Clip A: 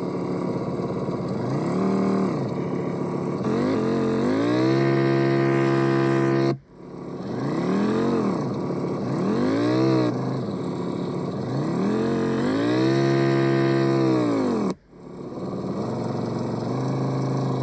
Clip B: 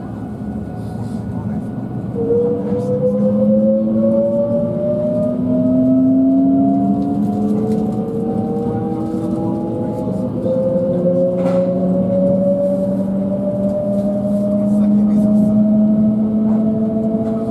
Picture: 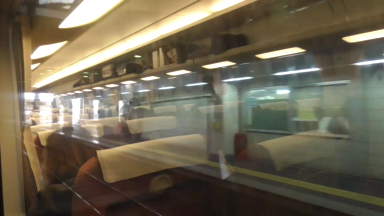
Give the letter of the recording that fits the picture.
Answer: B